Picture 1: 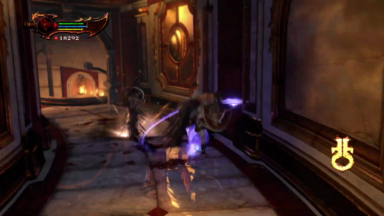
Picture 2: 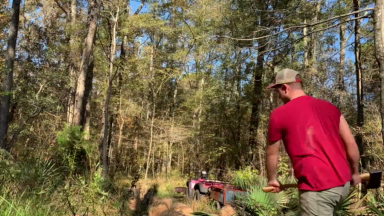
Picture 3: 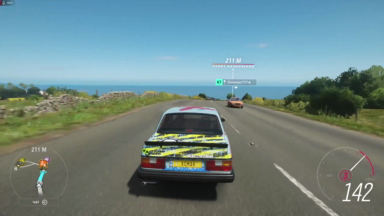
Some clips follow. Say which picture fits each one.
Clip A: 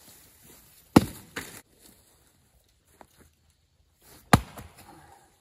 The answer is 2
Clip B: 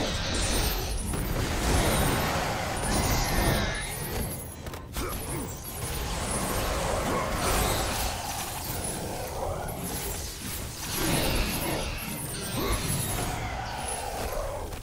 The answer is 1